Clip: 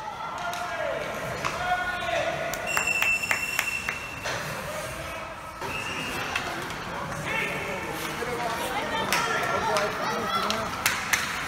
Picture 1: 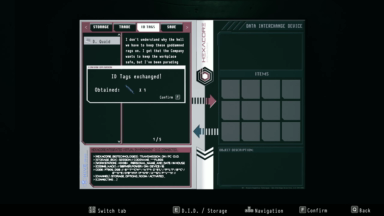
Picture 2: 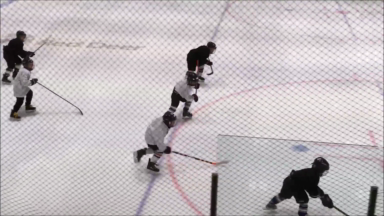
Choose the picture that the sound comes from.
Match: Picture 2